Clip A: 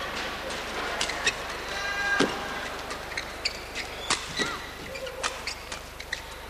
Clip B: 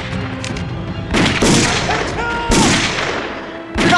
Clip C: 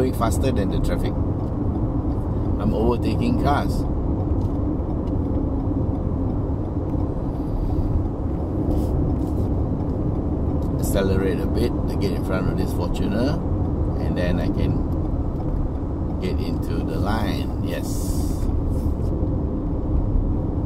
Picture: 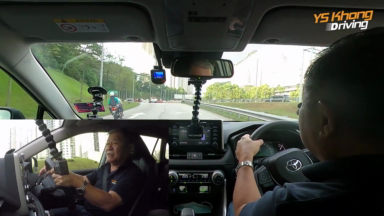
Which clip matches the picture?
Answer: C